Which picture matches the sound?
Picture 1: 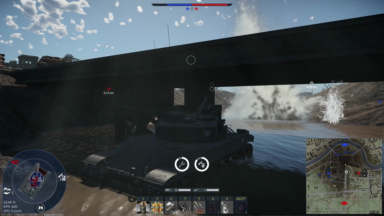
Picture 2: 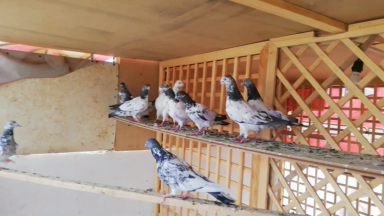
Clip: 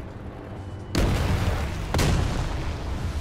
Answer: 1